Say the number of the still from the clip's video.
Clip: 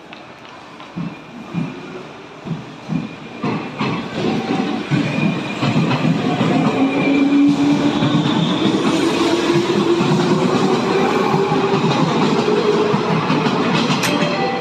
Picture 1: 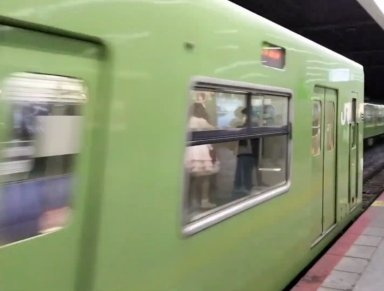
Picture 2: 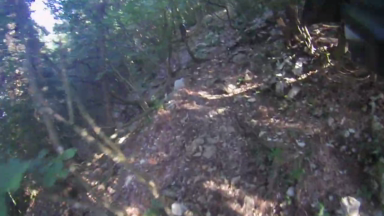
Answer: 1